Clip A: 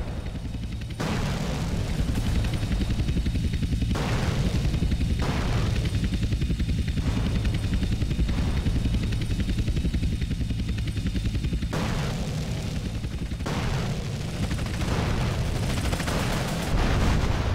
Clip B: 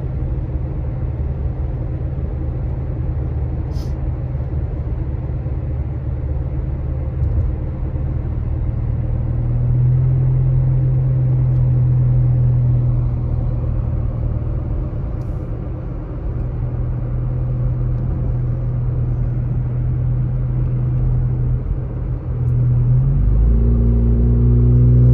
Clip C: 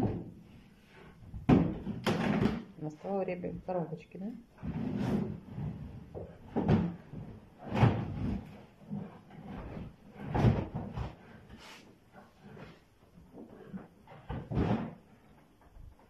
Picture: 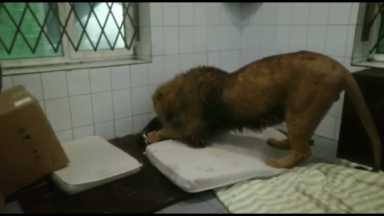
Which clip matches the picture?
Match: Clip C